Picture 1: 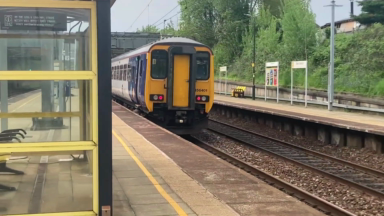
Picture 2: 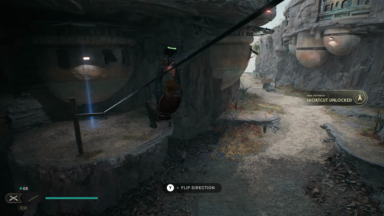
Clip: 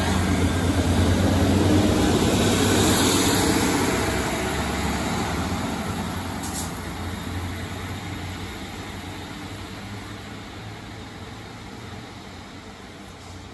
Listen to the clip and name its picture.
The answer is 1